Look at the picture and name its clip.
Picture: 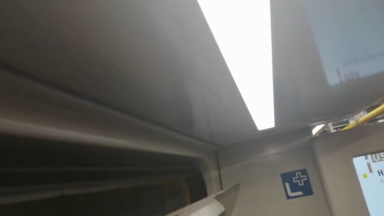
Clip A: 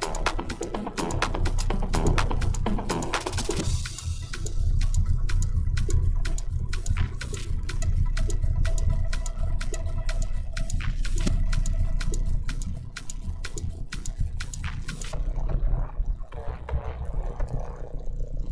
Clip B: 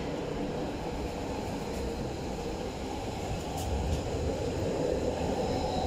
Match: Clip B